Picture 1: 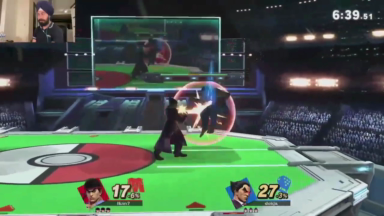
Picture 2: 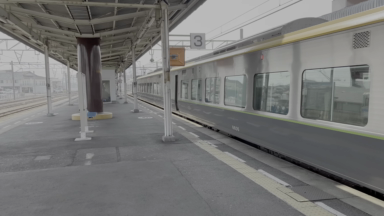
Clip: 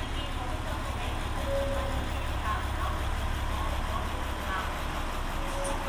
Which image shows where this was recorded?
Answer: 2